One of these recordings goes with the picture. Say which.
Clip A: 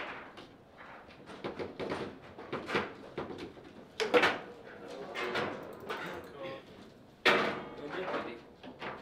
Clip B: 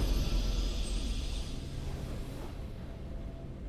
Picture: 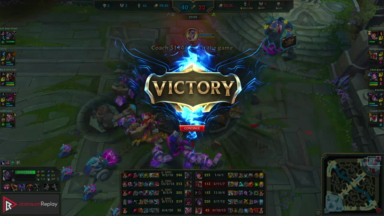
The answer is B